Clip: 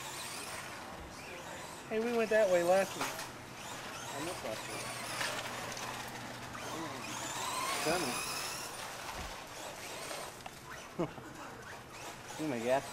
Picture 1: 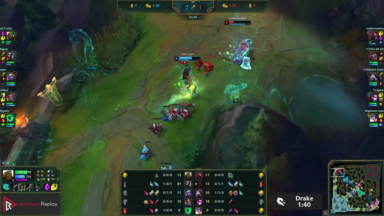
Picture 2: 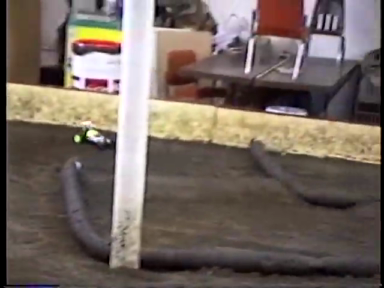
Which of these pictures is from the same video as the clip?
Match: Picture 2